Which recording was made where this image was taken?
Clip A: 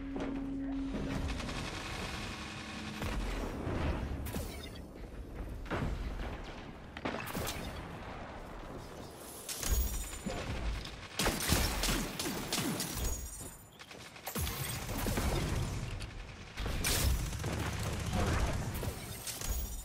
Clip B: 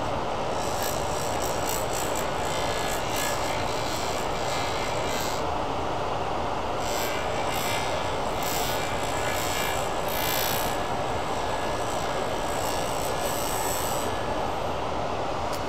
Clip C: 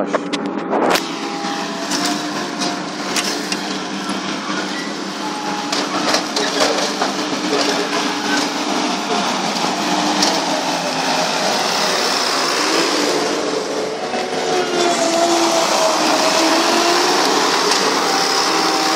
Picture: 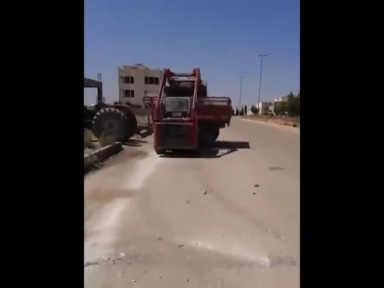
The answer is C